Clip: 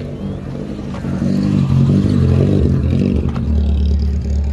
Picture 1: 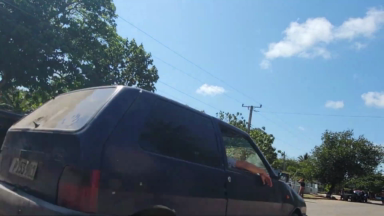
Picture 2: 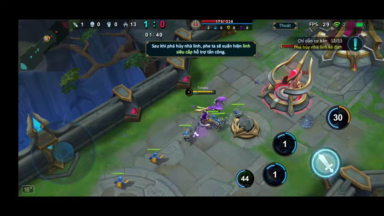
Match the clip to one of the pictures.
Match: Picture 1